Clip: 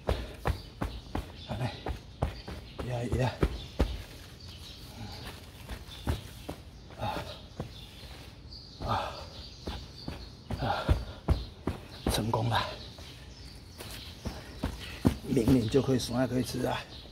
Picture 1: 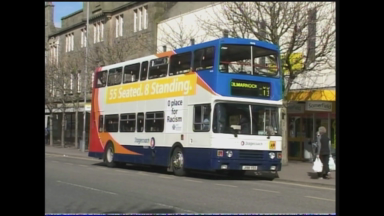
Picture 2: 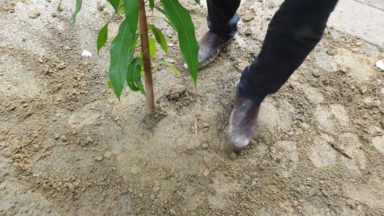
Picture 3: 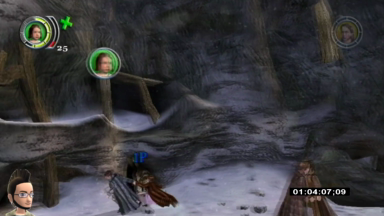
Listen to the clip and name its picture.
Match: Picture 2